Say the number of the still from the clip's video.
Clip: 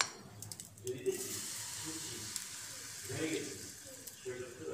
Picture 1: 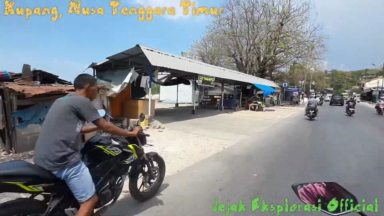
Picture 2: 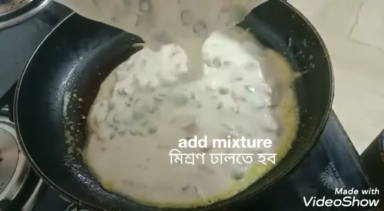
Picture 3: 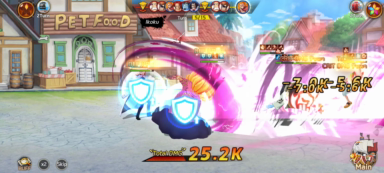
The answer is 2